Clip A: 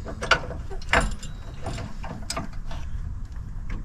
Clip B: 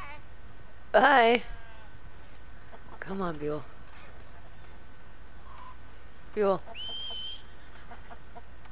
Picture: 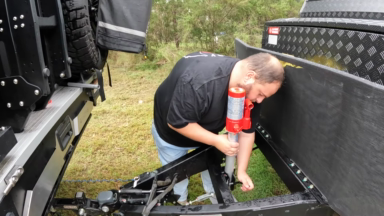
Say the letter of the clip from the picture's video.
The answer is A